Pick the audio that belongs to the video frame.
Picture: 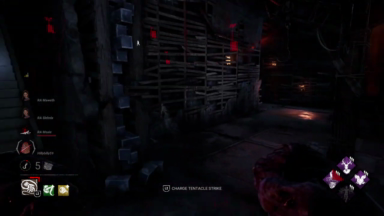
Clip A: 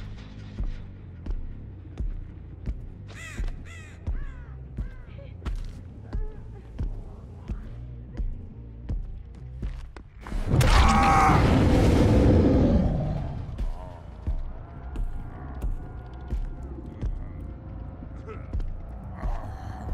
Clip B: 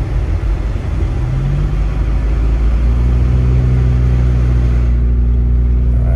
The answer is A